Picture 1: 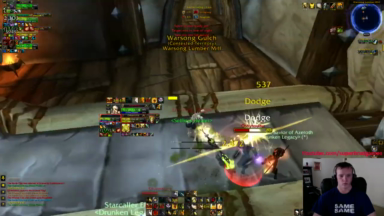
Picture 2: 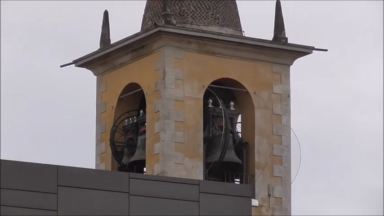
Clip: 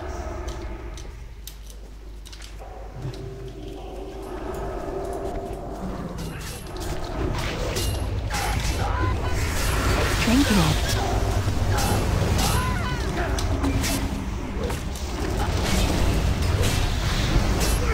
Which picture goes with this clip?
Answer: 1